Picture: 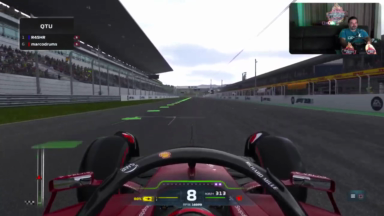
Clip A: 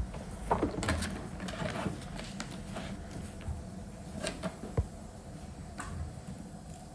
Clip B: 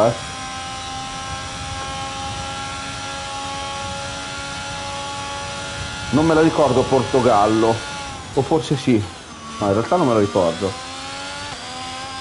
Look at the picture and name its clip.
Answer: B